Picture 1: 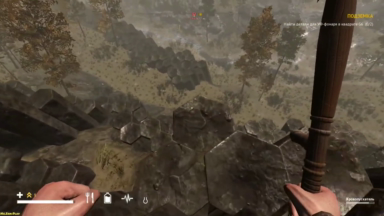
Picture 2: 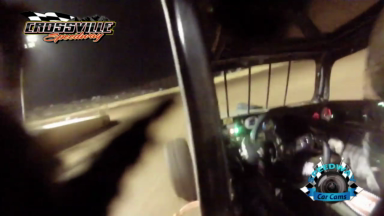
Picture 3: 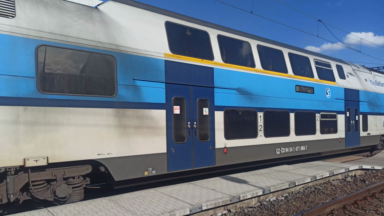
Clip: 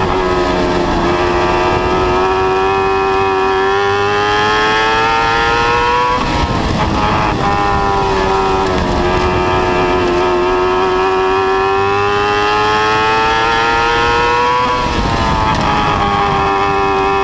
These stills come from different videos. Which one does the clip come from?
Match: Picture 2